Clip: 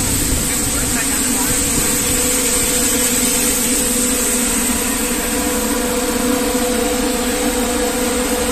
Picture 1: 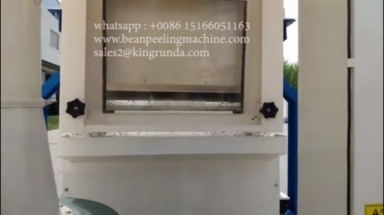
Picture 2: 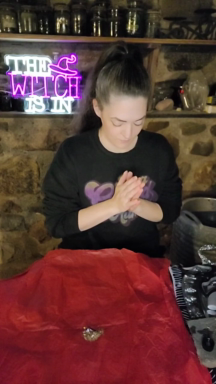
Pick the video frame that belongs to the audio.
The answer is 1